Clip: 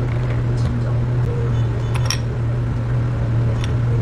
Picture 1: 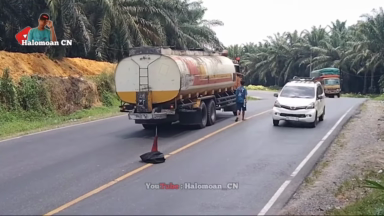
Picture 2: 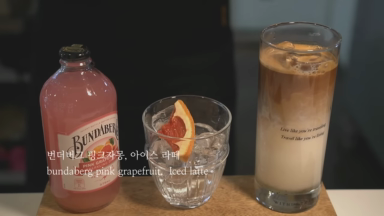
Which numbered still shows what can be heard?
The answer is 2